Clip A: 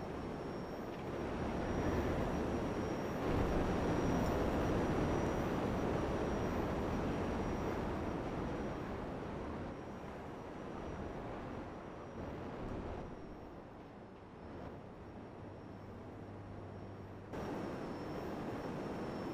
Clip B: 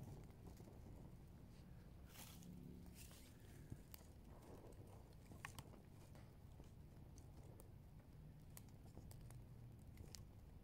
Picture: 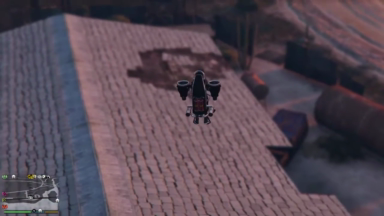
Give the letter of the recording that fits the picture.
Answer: A